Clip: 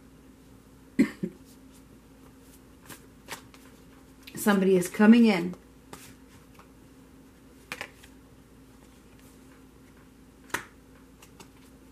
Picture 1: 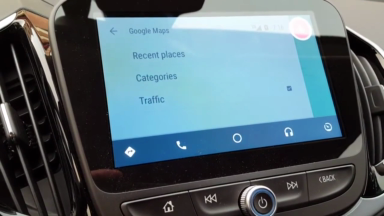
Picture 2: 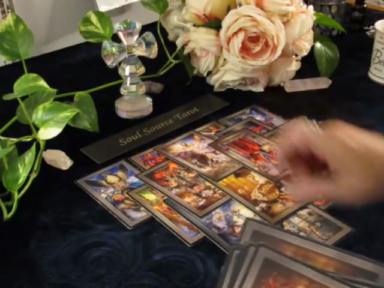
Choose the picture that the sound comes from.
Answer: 2